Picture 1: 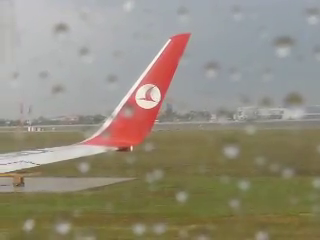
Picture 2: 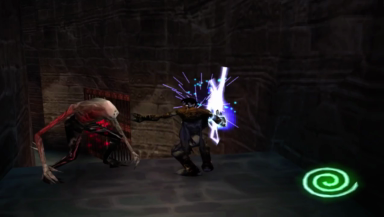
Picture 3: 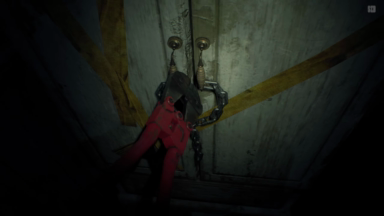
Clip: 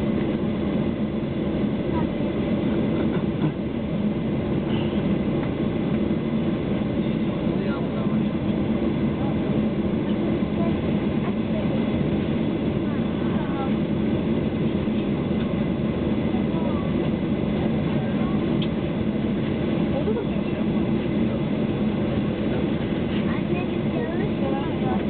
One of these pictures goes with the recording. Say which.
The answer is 1